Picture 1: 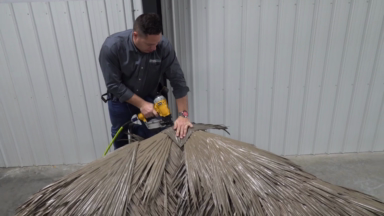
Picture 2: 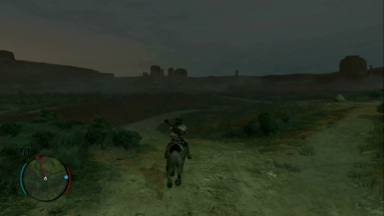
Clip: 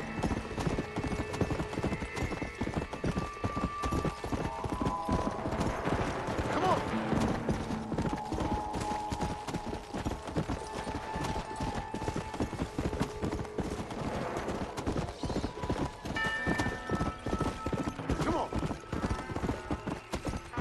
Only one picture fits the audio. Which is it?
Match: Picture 2